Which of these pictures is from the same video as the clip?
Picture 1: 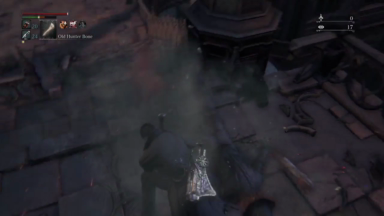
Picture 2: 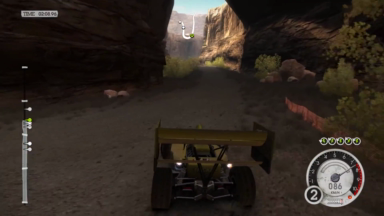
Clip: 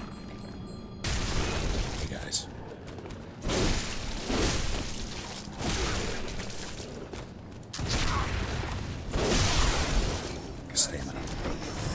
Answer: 1